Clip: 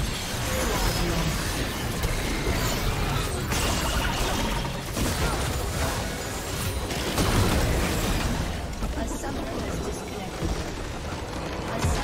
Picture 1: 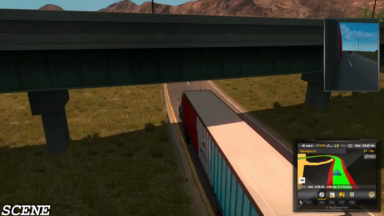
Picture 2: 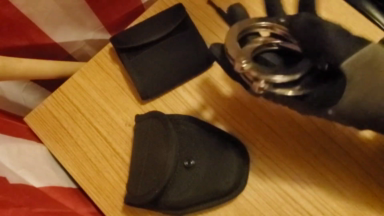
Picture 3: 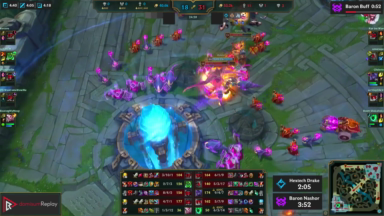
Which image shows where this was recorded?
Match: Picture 3